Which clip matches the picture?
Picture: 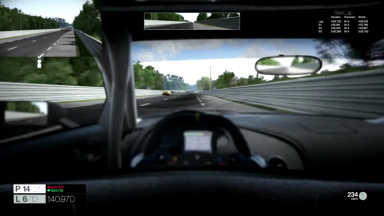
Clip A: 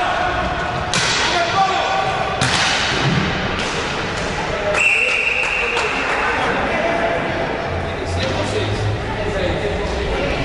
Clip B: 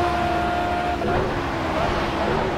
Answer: B